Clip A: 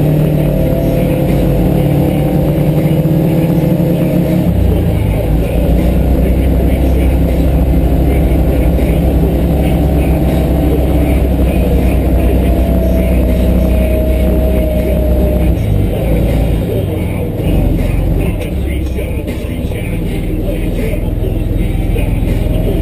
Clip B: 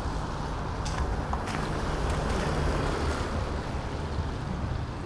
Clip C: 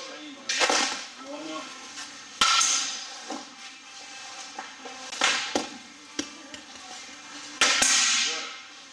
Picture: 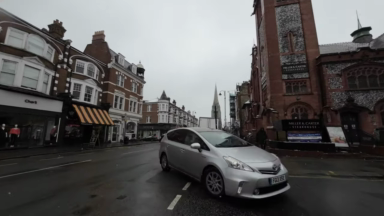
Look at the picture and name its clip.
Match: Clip B